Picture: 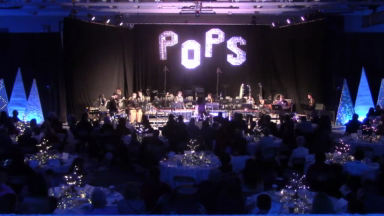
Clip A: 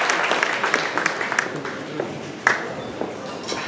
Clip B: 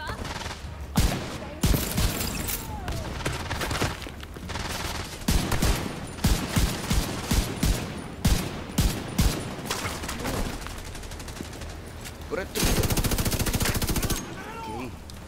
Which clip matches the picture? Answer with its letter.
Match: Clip A